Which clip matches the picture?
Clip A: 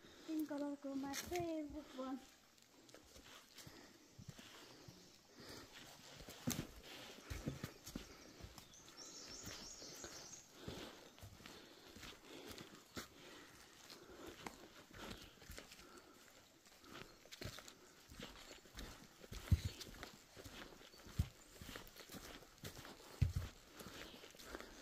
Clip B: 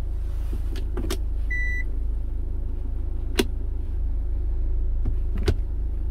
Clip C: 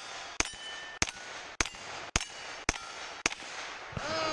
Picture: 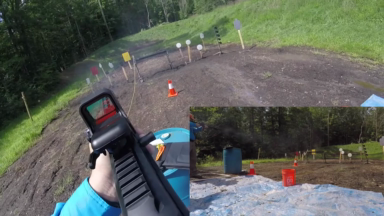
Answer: C